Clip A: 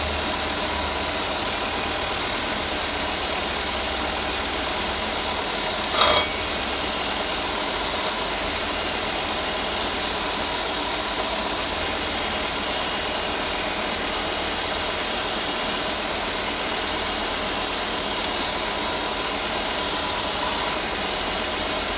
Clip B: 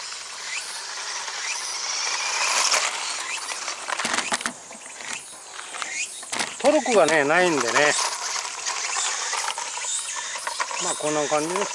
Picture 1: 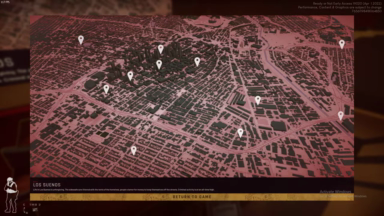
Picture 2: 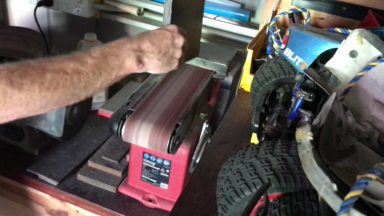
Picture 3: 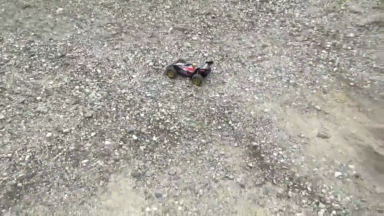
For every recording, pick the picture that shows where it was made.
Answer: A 2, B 3